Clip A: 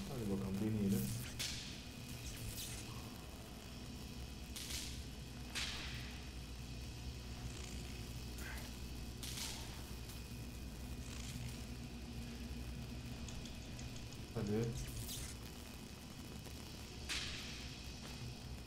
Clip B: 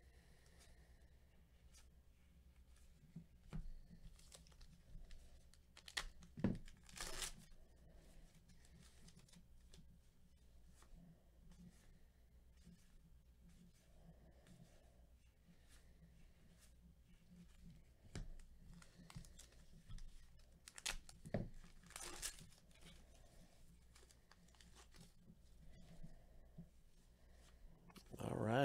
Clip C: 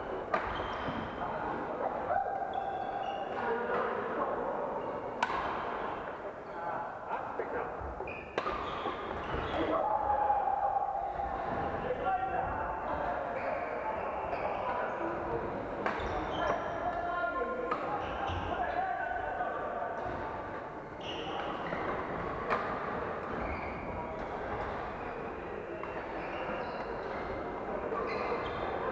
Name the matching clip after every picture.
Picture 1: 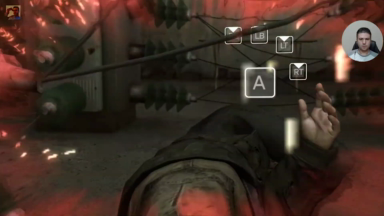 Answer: A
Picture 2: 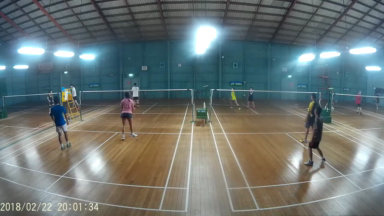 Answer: C